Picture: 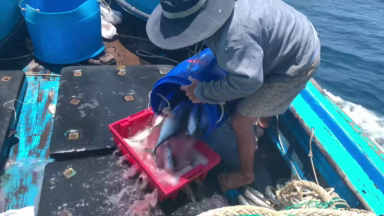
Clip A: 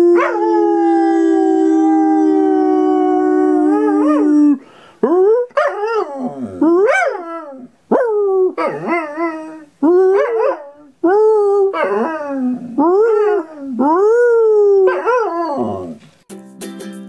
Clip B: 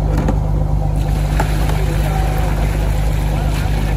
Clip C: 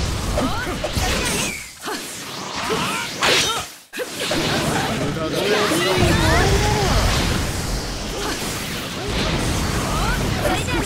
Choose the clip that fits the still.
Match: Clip B